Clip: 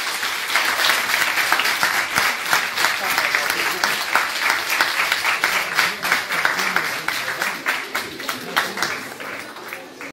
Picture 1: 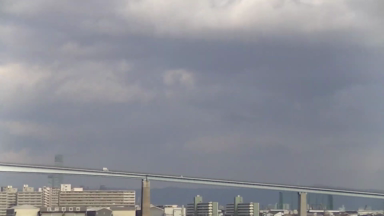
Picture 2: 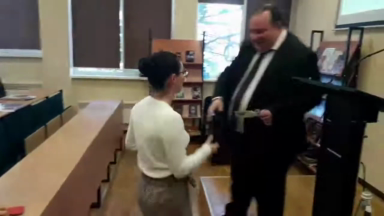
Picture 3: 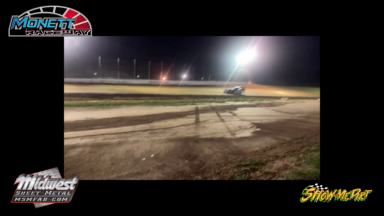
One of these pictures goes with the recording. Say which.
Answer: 2